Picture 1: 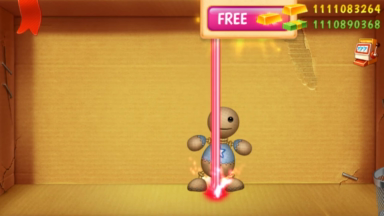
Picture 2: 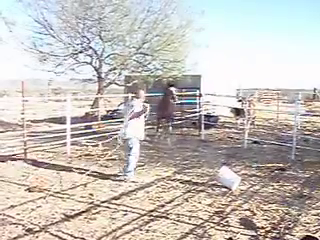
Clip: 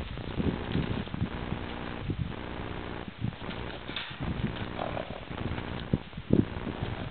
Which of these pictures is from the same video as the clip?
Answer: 2